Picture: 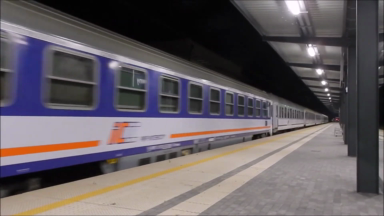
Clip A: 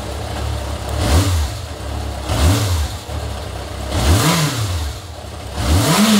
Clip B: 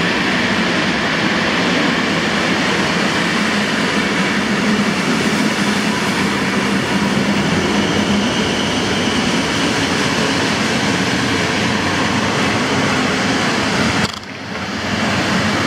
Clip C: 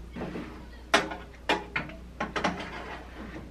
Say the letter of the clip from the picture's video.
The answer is B